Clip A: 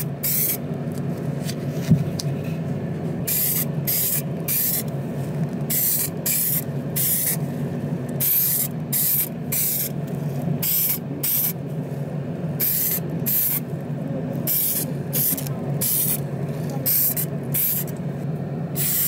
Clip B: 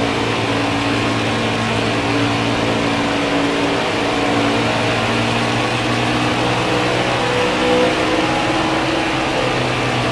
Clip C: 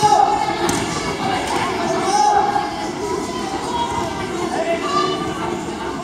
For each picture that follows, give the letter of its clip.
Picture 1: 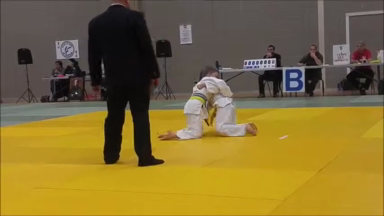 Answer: C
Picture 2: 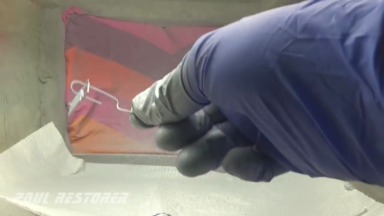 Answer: A